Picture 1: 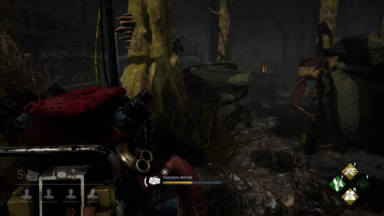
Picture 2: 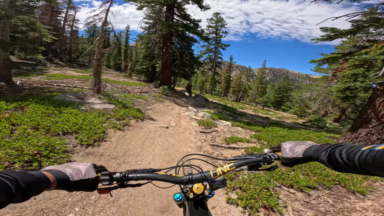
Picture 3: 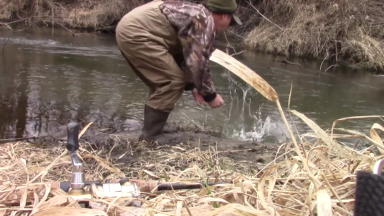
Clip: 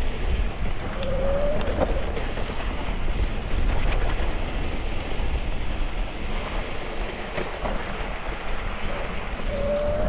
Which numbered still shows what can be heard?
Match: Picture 2